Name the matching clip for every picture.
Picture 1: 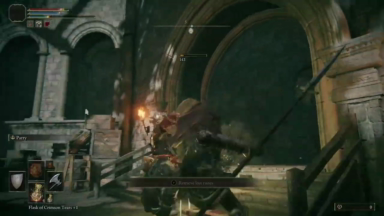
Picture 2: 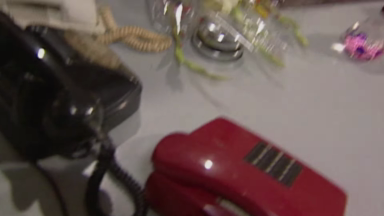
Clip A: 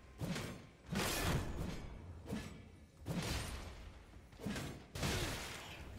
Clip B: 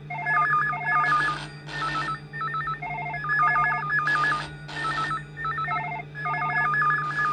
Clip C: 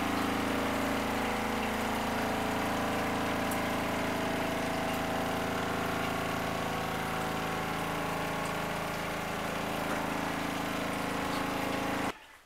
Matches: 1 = A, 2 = B